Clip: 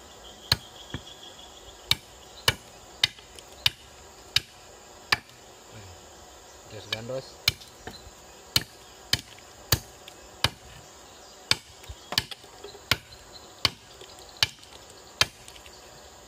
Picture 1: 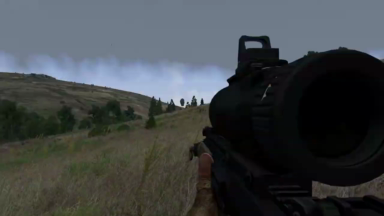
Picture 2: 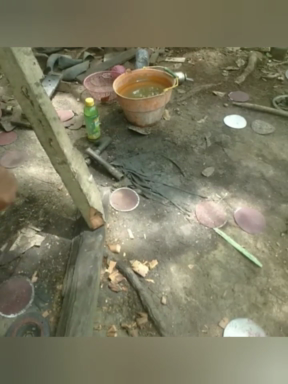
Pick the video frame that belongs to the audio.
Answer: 2